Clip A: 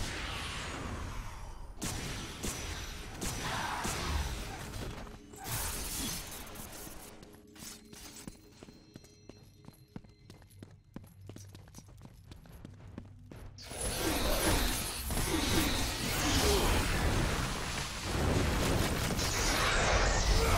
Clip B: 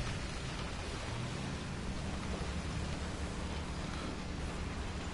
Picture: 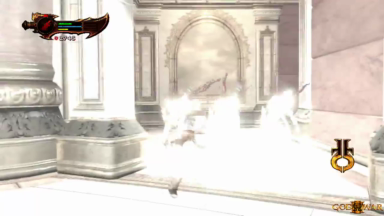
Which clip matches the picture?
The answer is A